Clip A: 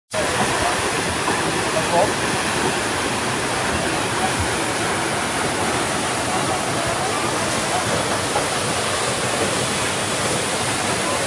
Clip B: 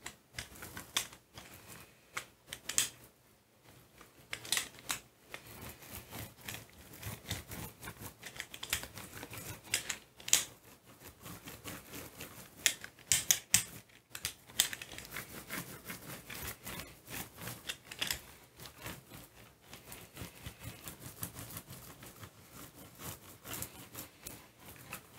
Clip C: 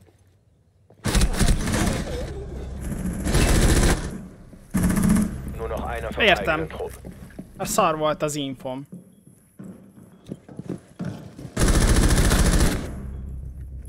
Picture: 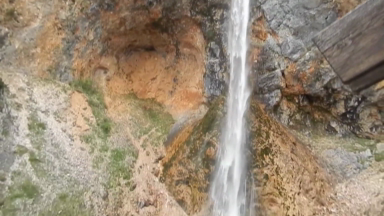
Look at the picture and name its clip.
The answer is A